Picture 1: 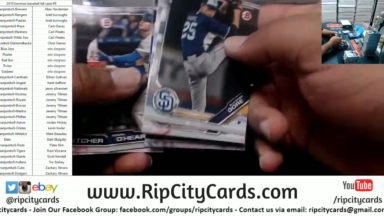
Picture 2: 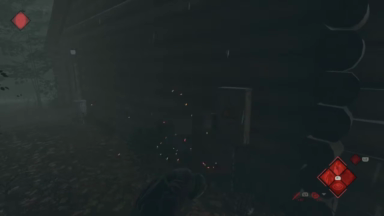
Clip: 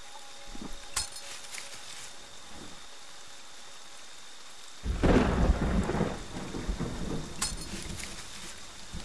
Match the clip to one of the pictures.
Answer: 2